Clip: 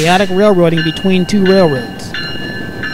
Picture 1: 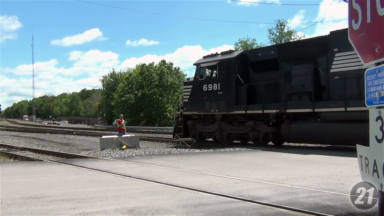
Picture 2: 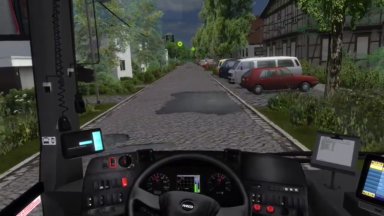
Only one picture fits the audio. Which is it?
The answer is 1